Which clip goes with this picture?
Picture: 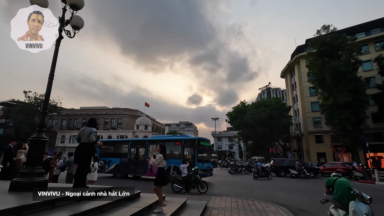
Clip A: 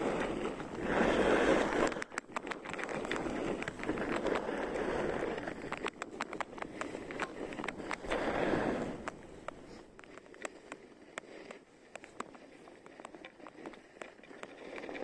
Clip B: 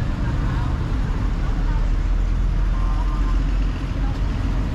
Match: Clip B